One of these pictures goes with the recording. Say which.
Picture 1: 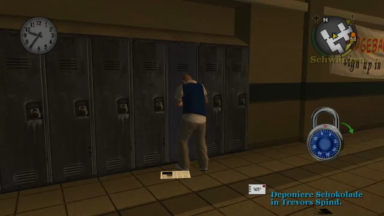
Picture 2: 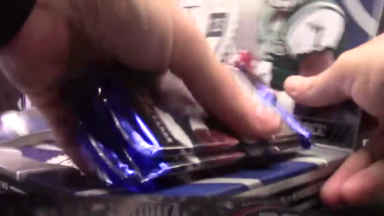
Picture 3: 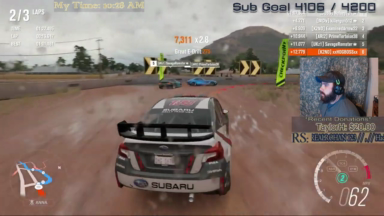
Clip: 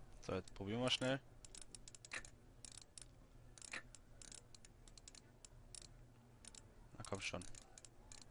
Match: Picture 1